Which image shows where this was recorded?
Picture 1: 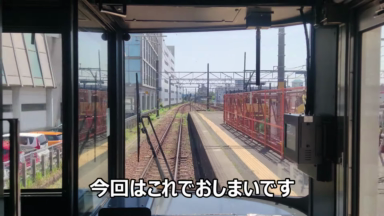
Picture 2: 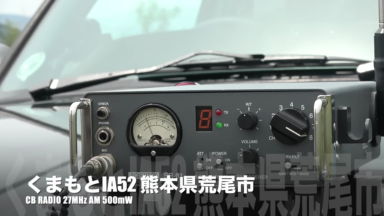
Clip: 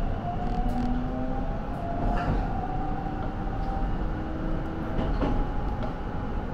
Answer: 1